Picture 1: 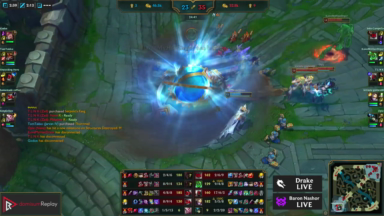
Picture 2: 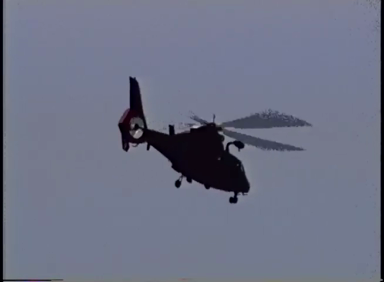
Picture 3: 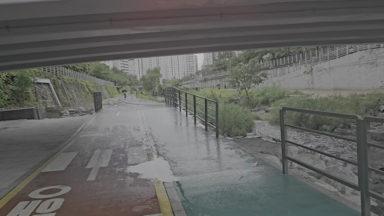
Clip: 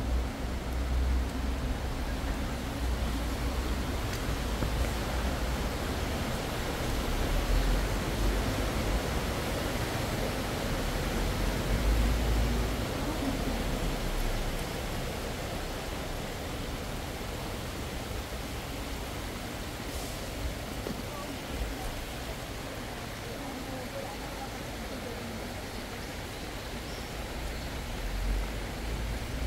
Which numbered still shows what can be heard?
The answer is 3